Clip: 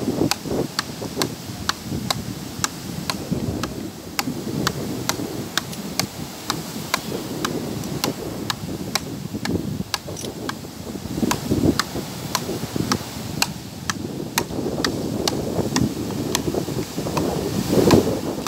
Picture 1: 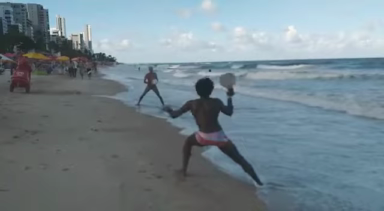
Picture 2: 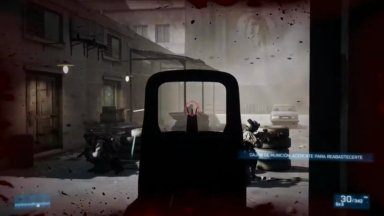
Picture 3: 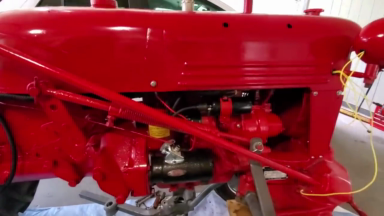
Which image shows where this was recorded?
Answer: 1